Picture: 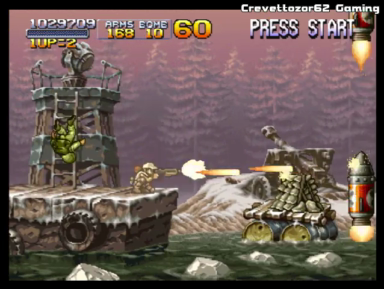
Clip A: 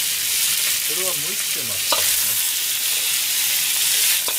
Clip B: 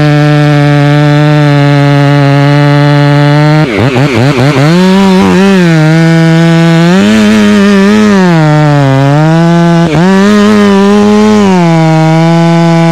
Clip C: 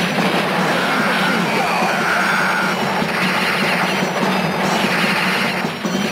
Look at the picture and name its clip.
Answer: C